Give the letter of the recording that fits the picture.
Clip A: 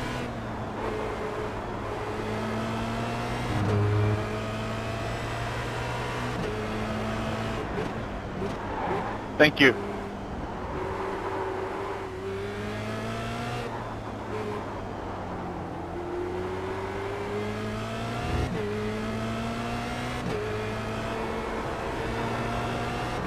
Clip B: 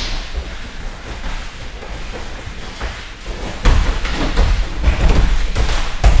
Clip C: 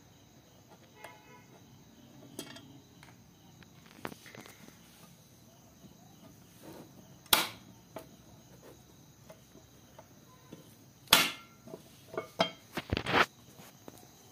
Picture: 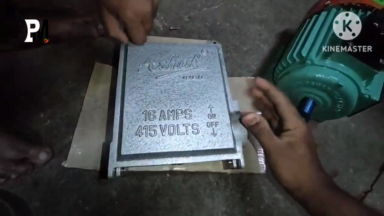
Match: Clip C